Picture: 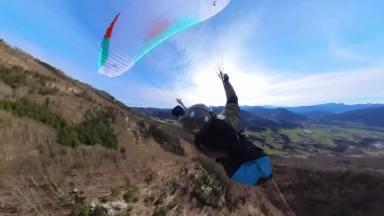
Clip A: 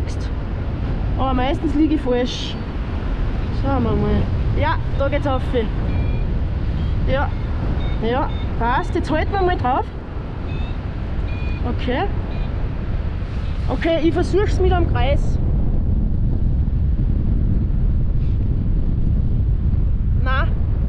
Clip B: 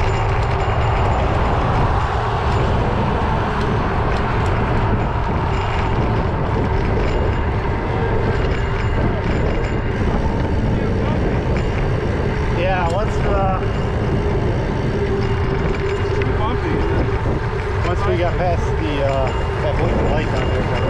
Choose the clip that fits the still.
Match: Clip A